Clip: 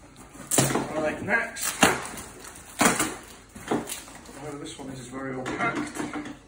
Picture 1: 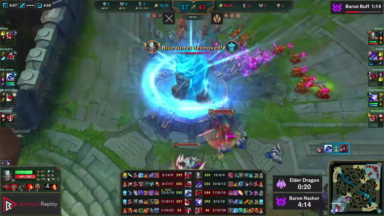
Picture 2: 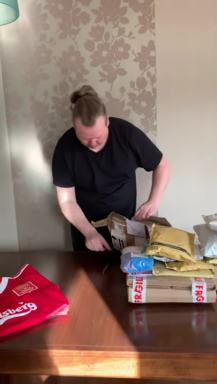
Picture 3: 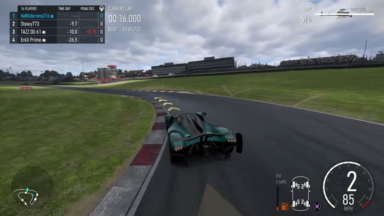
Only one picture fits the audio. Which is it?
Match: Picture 2